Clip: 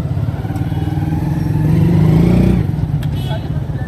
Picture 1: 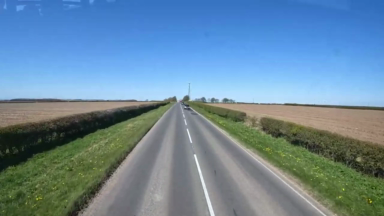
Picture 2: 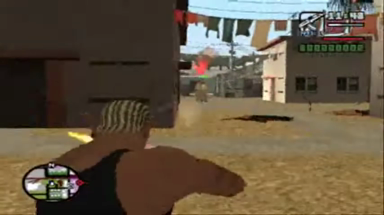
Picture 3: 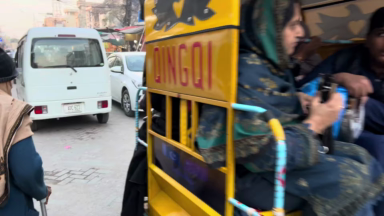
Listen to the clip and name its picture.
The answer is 3